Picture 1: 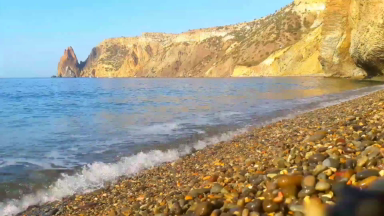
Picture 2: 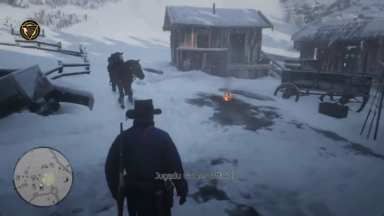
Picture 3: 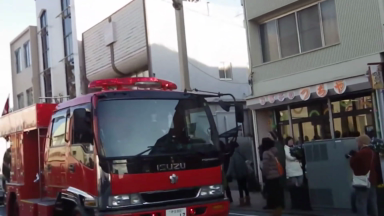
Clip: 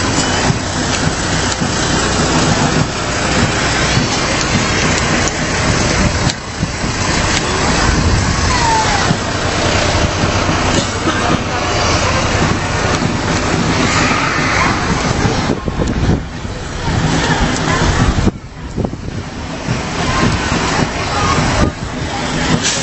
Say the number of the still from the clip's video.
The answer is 3